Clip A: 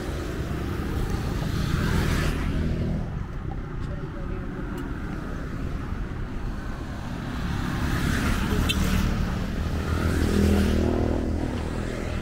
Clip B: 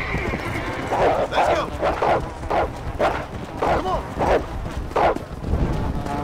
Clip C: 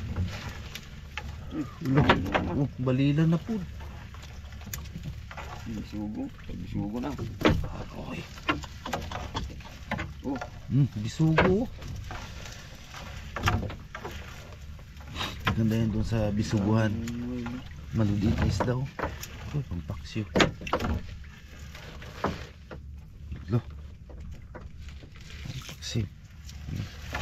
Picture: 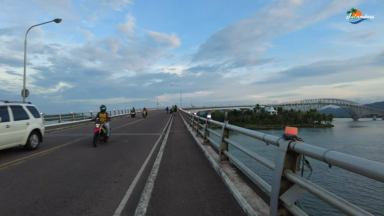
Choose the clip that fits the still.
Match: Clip A